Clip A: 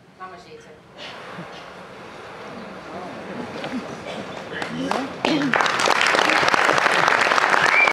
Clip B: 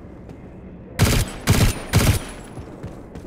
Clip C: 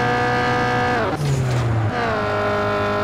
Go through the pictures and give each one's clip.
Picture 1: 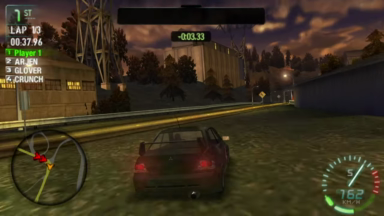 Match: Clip C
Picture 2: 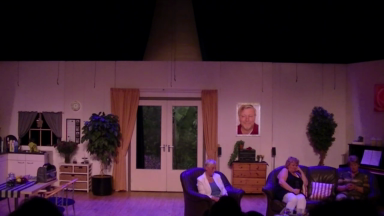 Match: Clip A